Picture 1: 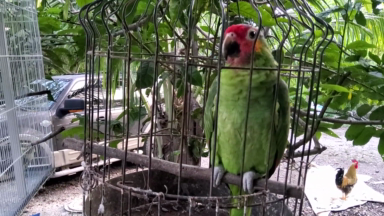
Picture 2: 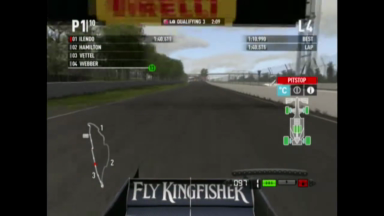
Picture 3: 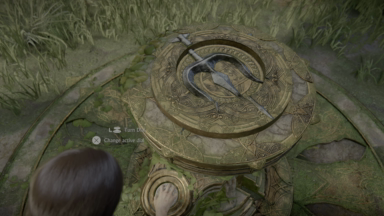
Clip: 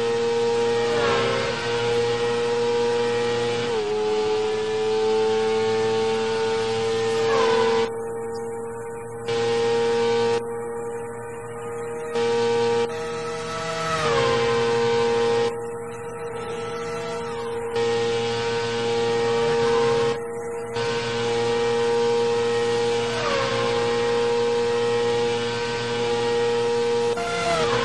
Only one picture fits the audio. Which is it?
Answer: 2